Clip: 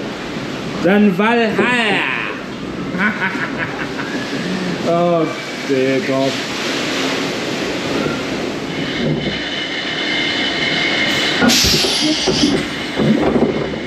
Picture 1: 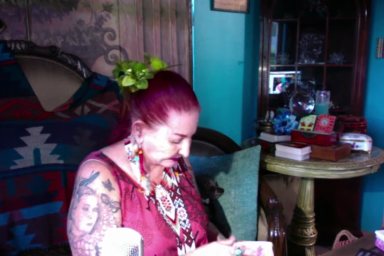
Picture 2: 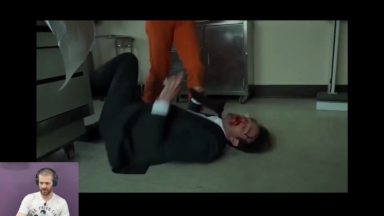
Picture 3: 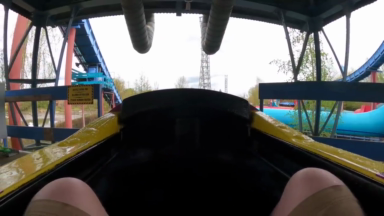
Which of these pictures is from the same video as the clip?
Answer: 3